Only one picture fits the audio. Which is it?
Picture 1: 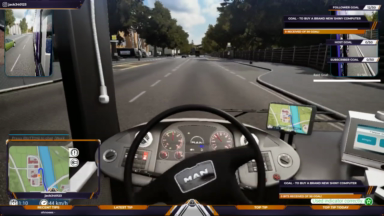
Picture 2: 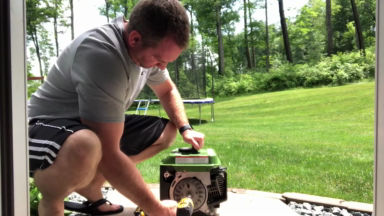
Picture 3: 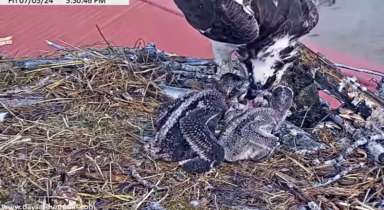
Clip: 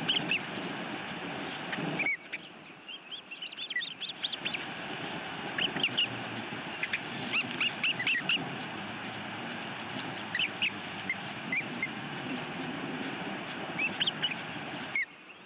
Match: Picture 3